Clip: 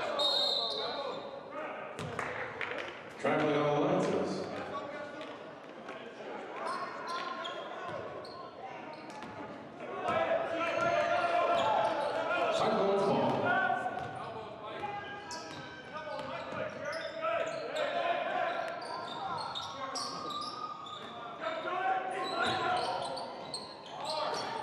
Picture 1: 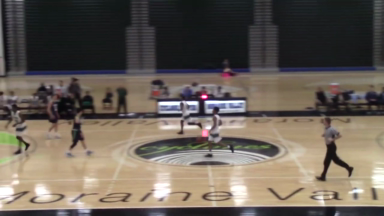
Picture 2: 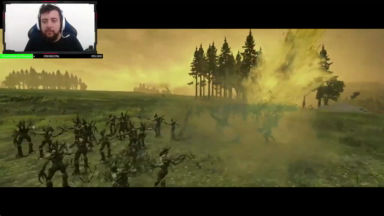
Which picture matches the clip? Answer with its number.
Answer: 1